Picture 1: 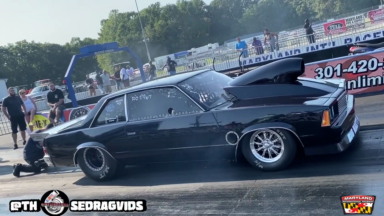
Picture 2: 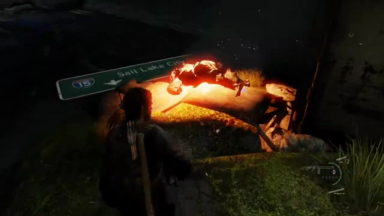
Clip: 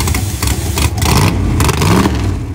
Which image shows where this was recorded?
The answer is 1